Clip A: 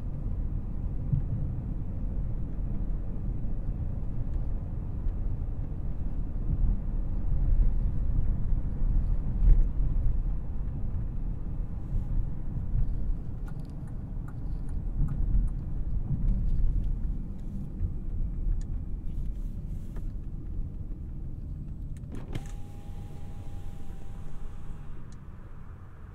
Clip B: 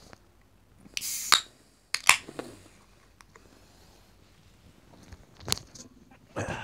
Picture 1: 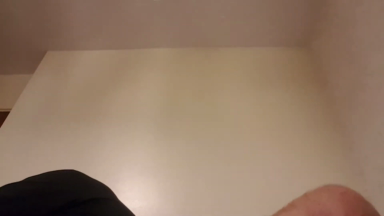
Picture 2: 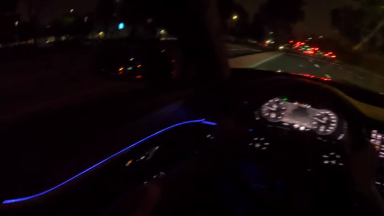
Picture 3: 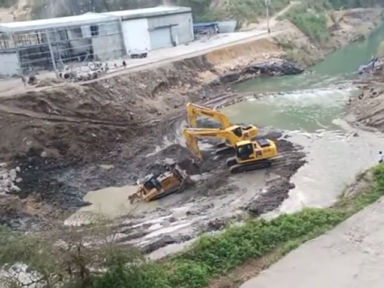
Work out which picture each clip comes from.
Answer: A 2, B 1